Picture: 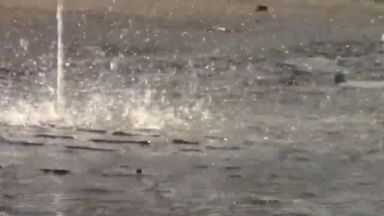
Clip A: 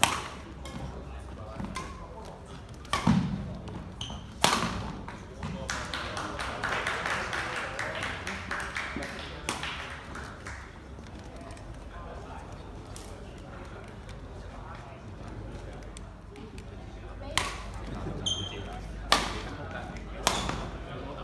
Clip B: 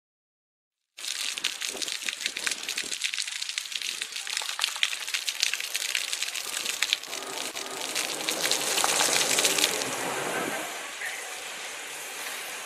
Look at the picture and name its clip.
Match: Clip B